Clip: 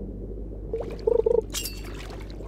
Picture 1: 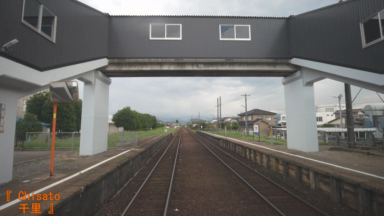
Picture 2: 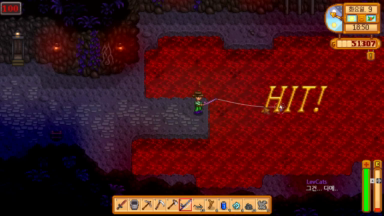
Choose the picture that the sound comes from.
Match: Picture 2